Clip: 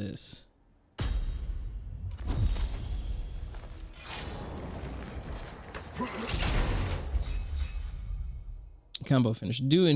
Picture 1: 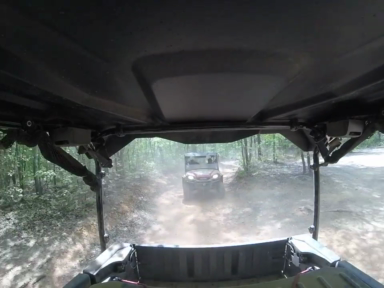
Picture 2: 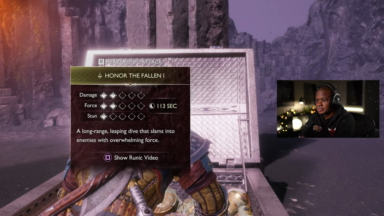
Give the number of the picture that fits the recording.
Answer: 2